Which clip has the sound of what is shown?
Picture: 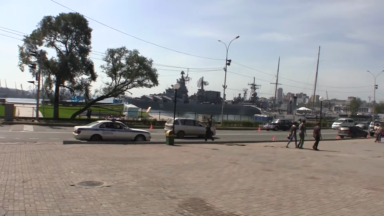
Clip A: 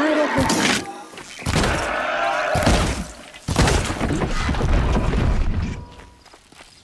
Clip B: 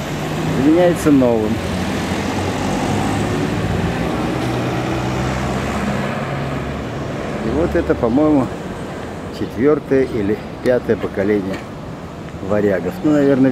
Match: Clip B